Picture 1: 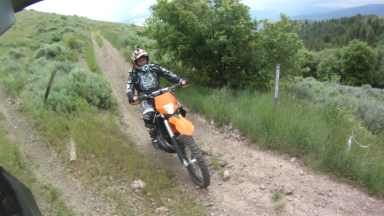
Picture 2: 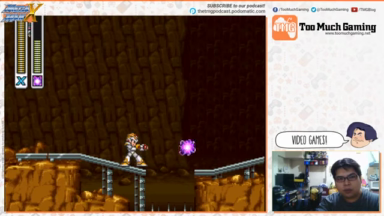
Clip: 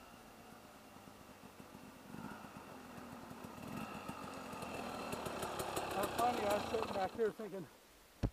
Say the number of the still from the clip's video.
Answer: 1